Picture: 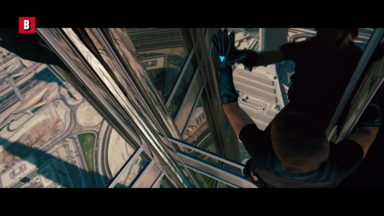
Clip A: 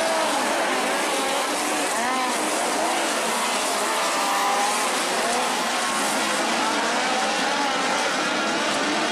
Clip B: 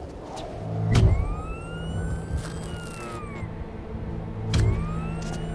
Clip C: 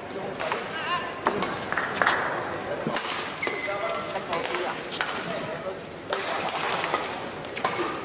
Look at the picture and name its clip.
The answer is B